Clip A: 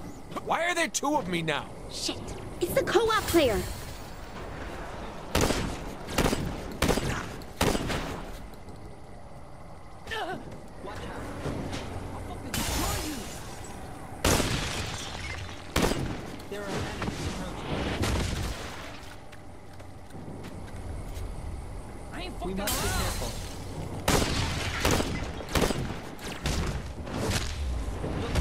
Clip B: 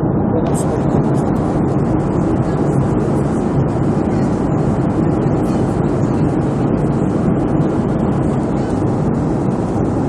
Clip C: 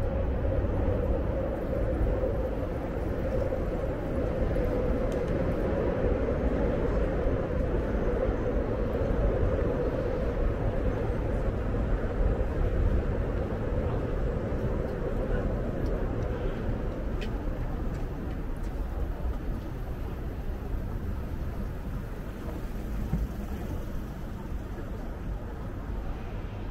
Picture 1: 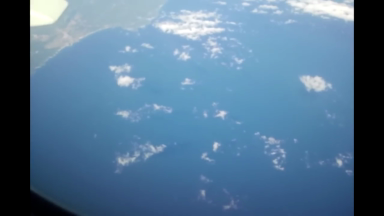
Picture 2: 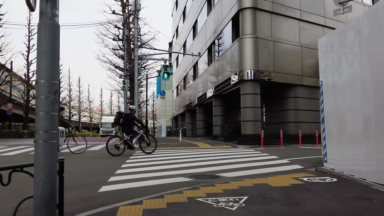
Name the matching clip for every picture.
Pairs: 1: B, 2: C